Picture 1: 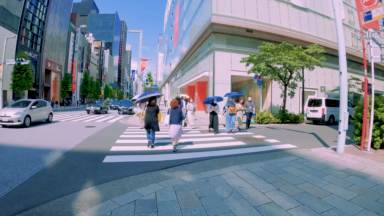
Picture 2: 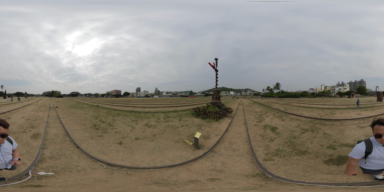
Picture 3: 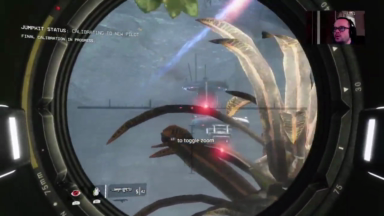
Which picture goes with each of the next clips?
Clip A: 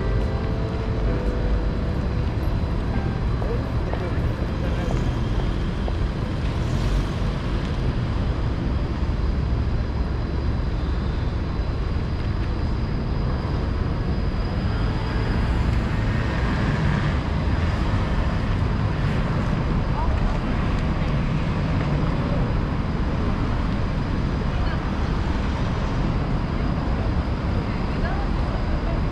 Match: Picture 1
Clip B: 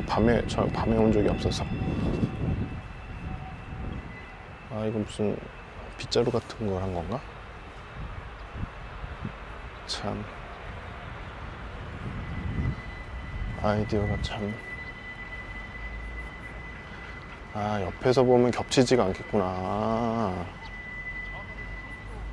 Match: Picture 2